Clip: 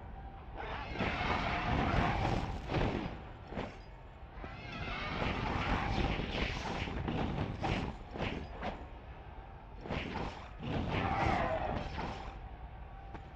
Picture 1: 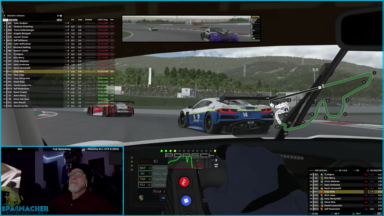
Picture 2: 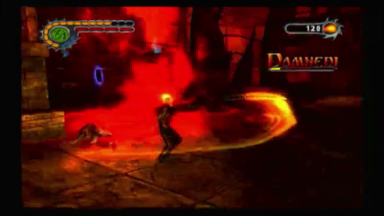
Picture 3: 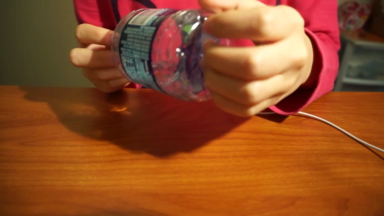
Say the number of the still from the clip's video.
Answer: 2